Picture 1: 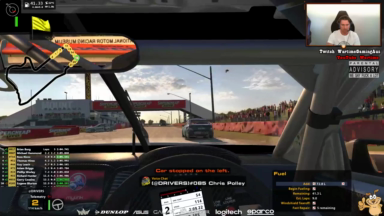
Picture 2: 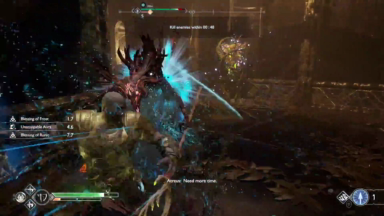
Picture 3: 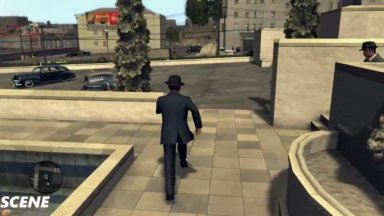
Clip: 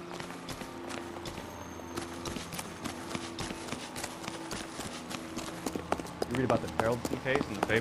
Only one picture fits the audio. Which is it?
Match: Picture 3